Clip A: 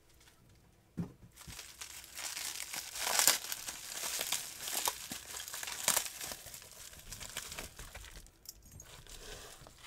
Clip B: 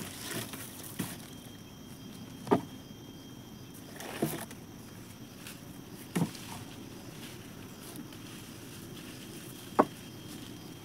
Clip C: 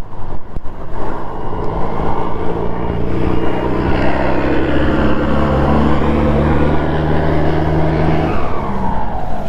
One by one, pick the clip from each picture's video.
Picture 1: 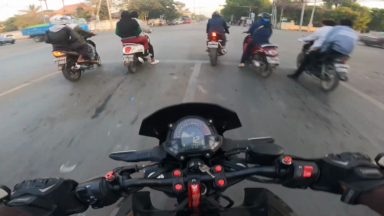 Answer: C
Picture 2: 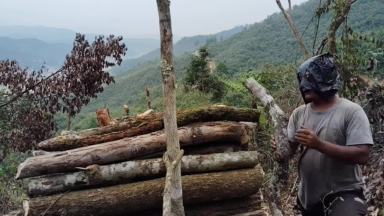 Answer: B